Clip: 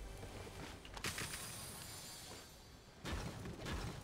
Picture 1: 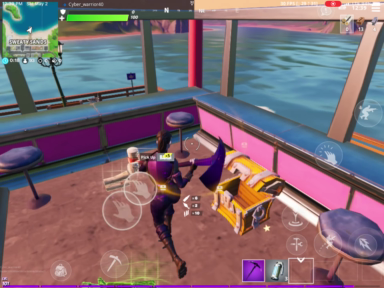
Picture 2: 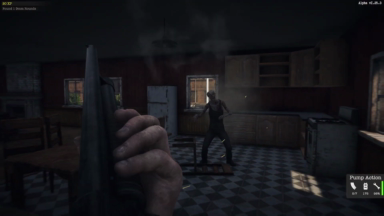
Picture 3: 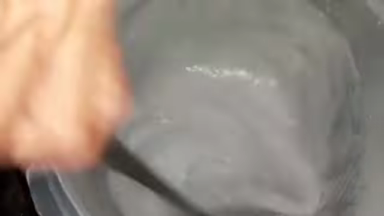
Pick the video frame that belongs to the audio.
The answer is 1